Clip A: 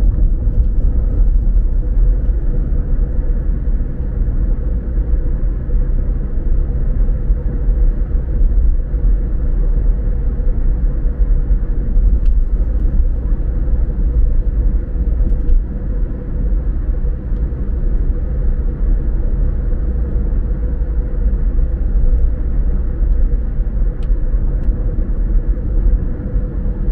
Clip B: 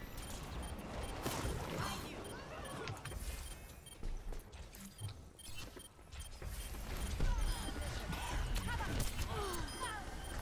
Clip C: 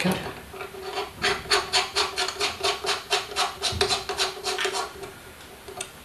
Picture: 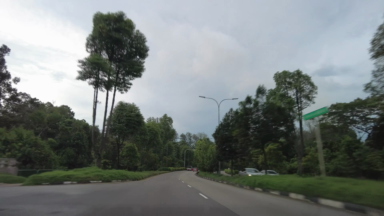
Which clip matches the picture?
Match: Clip A